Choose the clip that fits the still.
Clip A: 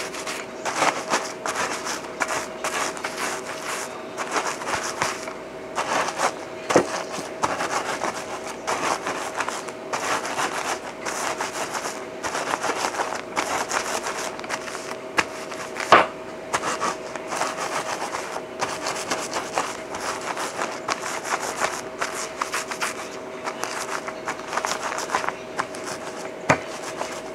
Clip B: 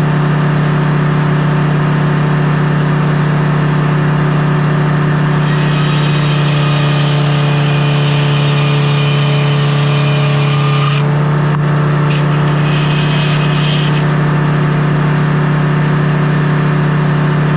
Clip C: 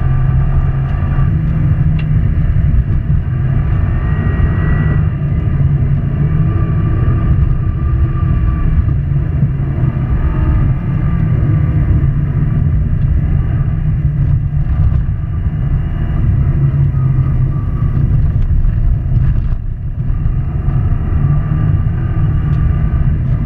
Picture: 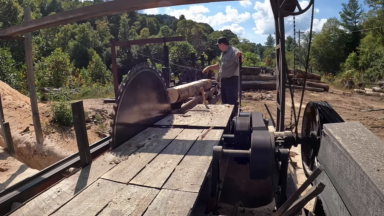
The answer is B